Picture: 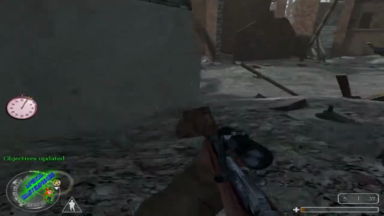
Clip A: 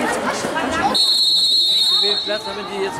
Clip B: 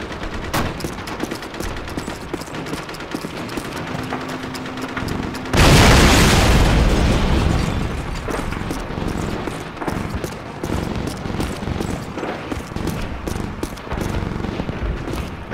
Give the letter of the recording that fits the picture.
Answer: B